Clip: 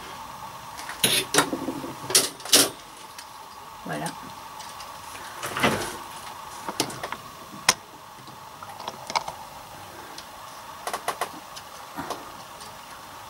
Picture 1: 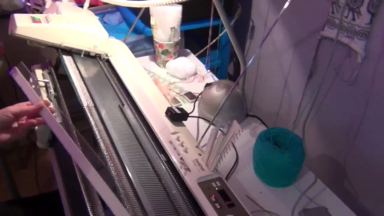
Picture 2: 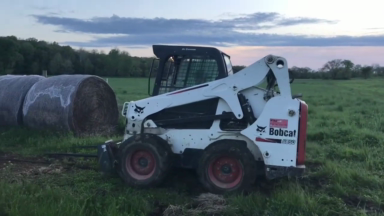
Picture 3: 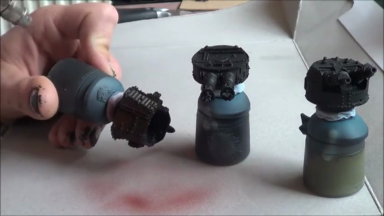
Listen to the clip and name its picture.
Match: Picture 1